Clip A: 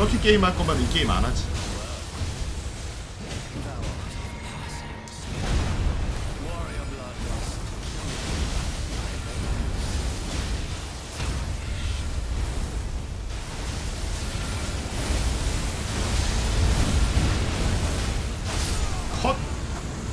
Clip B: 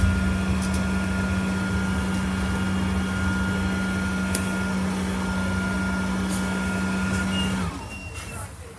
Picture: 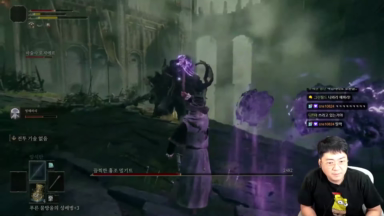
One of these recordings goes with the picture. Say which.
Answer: A